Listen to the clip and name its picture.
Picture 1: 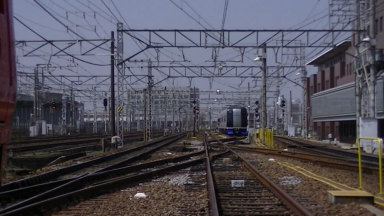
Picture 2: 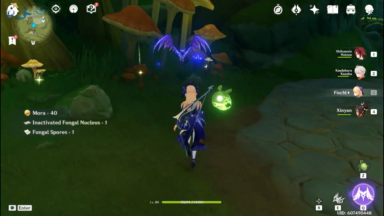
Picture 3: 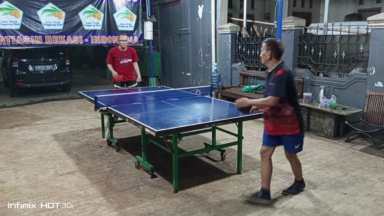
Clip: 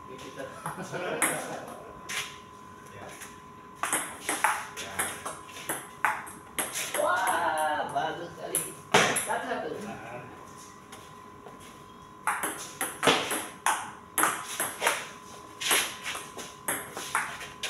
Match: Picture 3